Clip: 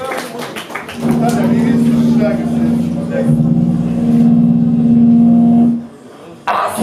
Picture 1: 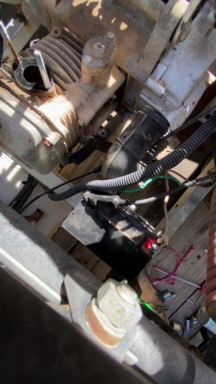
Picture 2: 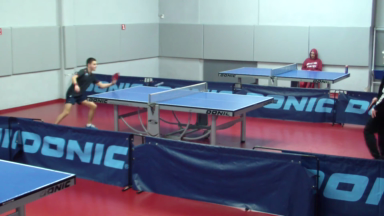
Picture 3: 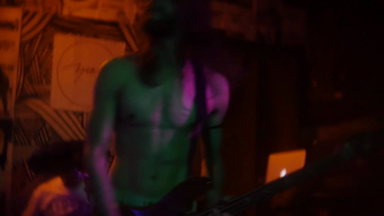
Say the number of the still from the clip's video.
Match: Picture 3